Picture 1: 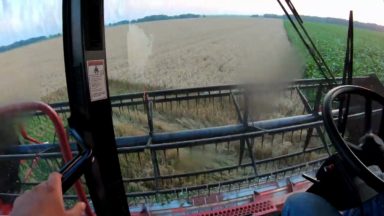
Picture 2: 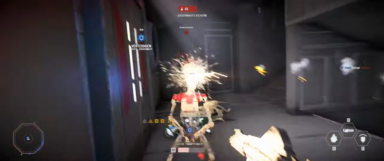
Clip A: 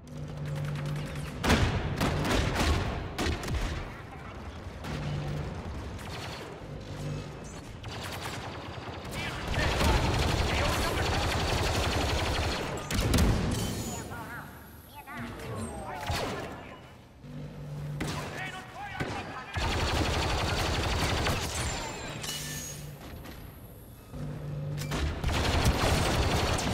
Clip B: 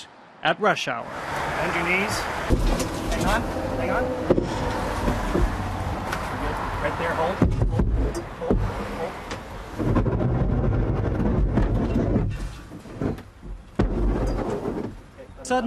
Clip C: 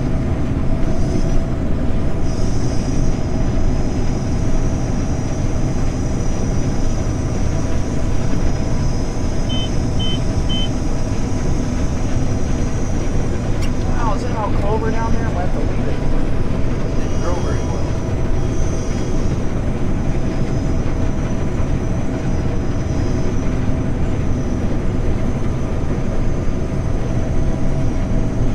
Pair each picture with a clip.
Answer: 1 C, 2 A